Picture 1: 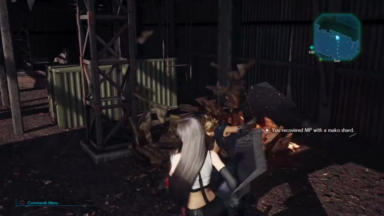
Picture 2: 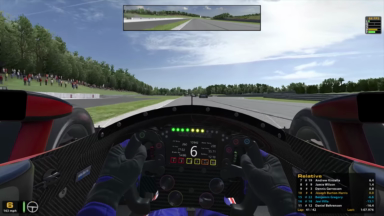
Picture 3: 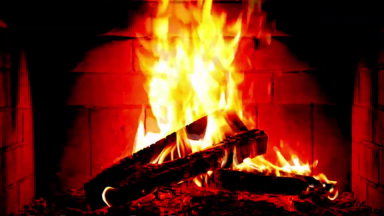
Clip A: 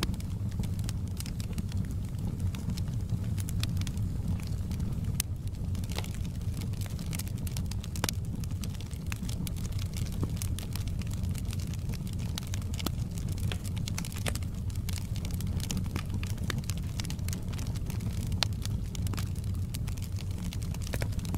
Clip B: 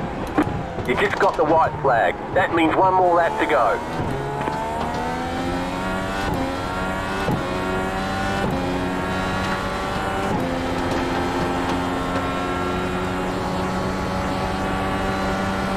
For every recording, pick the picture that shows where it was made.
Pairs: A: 3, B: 2